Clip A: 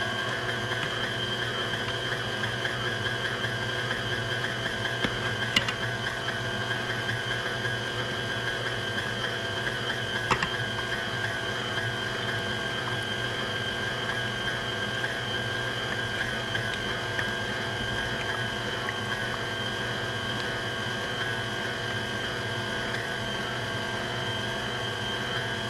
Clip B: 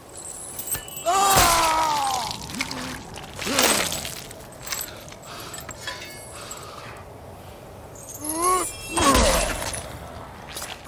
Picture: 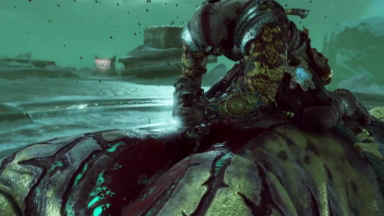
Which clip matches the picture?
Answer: B